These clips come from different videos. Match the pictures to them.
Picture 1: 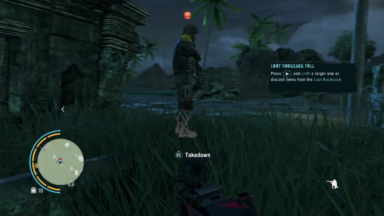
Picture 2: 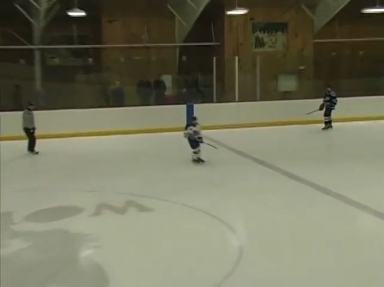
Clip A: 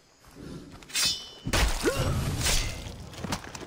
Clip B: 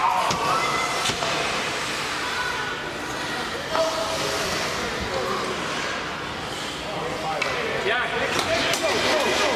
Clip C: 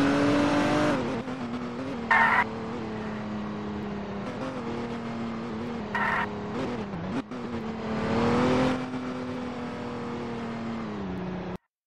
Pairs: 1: A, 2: B